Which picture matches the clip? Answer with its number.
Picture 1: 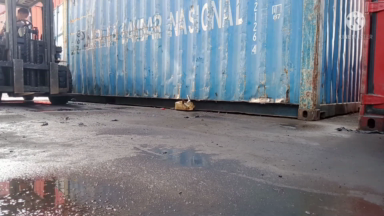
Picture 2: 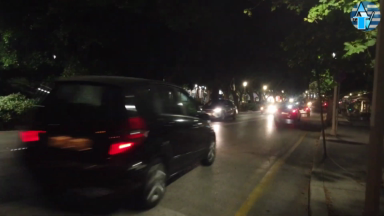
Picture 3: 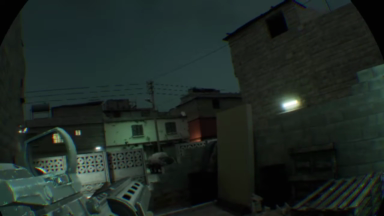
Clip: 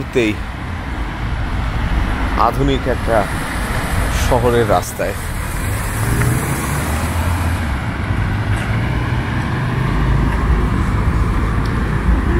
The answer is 2